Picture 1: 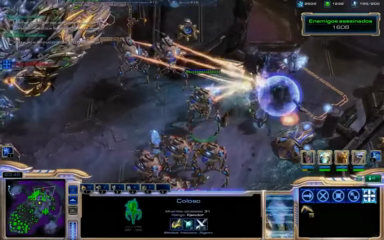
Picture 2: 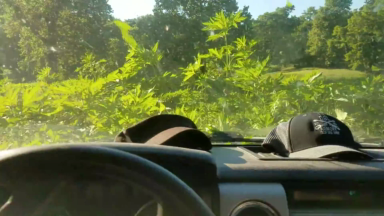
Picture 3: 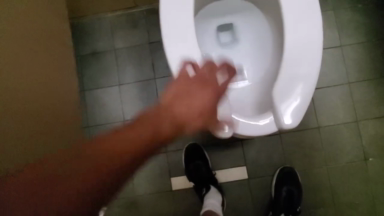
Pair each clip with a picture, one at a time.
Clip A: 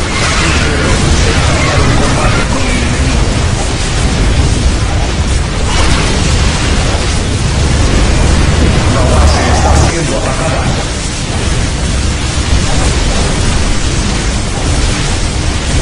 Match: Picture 1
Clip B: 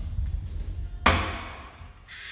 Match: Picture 3